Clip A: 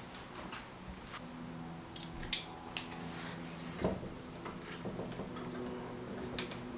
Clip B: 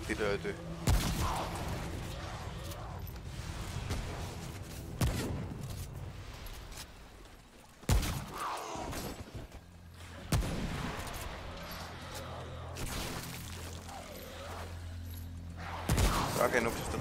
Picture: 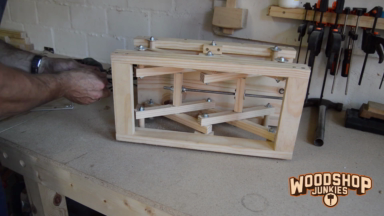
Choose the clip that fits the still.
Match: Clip A